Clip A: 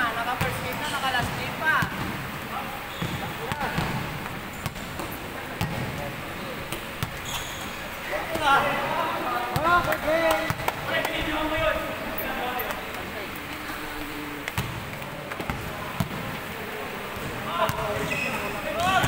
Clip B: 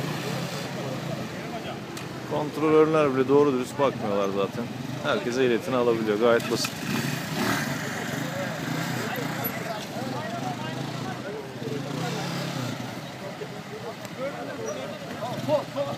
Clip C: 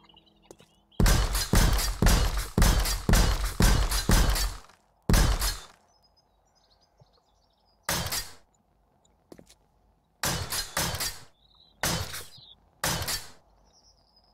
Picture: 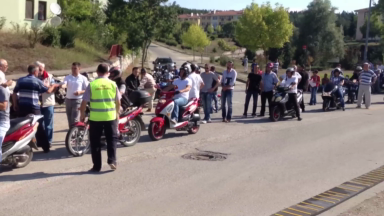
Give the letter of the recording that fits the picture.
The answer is B